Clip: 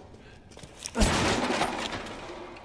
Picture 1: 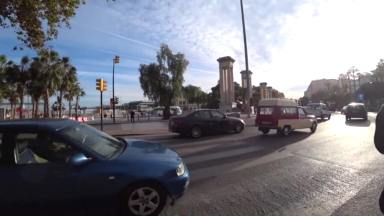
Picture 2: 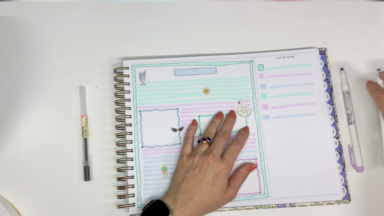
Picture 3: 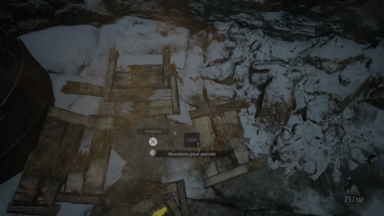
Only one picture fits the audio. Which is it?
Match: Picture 3